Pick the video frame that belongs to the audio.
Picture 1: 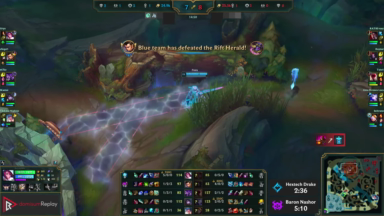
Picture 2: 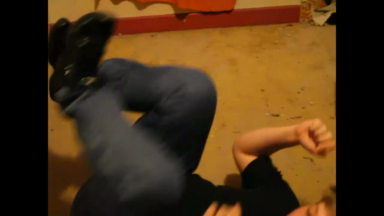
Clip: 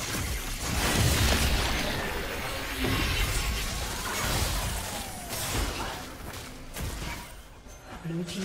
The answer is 1